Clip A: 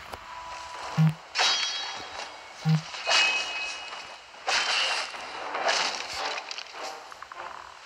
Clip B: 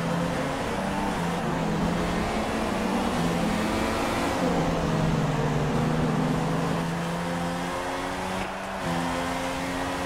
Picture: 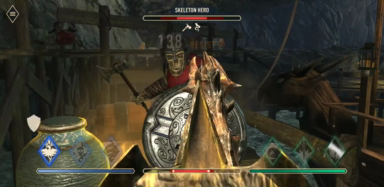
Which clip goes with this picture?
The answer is A